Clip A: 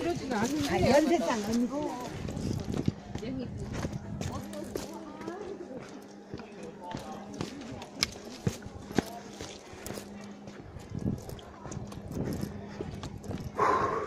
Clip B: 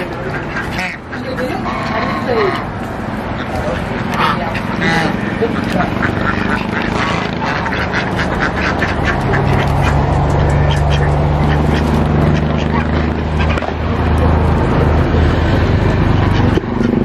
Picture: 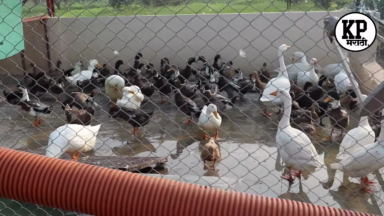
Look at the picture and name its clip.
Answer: B